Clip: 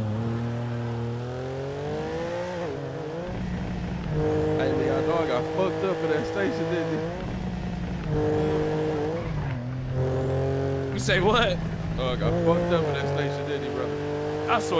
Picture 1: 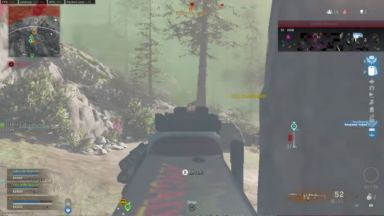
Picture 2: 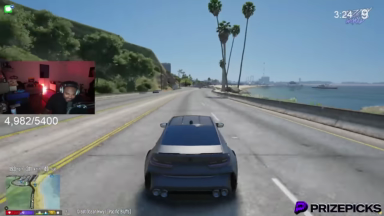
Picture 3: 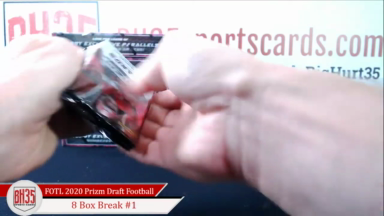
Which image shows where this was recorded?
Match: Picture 2